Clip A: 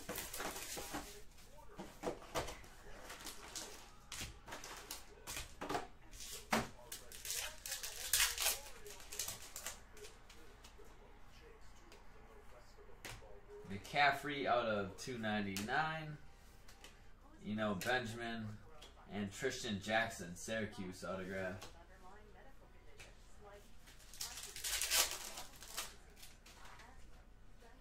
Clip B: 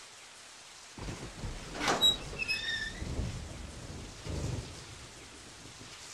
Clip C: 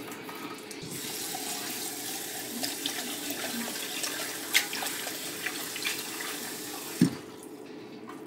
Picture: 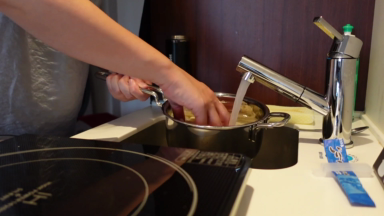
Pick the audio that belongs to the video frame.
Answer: C